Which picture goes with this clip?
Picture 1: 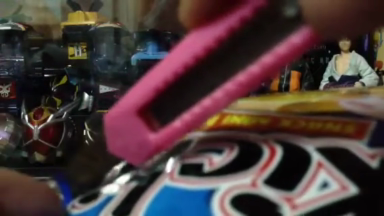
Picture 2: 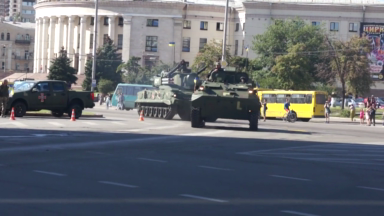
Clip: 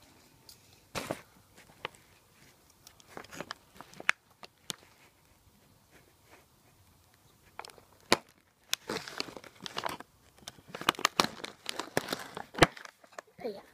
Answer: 1